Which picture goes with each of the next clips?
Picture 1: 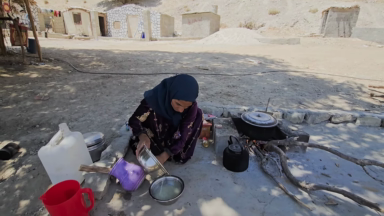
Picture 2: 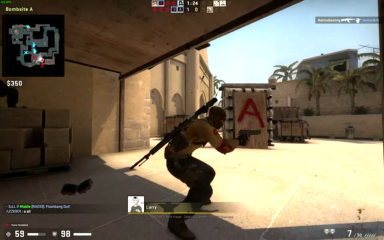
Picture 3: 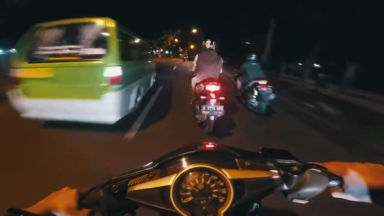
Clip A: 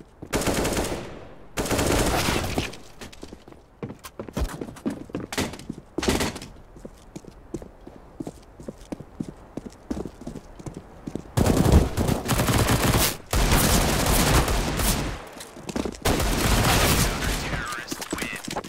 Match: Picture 2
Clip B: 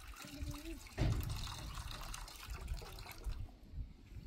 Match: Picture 1